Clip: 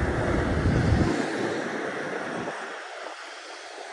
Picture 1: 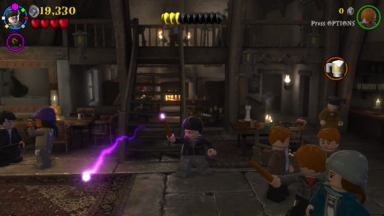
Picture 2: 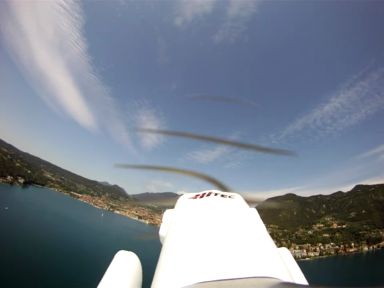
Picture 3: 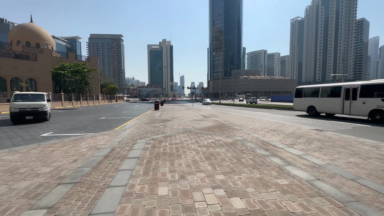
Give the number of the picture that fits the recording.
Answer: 3